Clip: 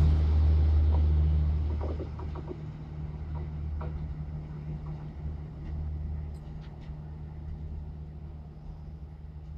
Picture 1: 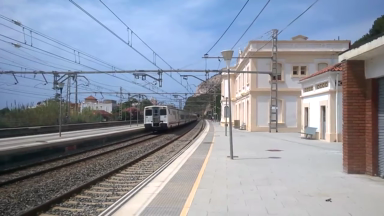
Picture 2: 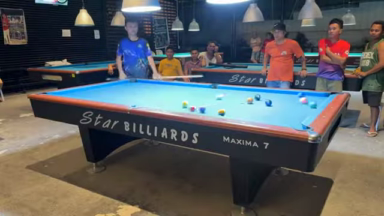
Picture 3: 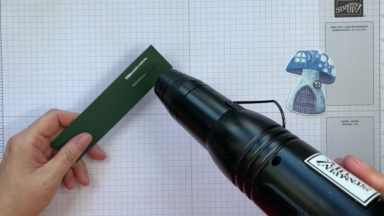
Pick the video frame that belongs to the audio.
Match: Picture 1